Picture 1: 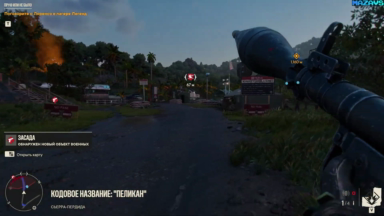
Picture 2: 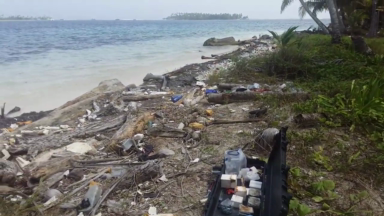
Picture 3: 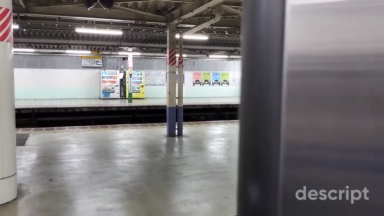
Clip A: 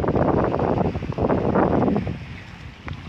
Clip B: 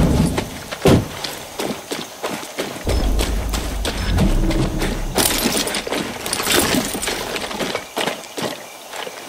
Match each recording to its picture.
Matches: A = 2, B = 1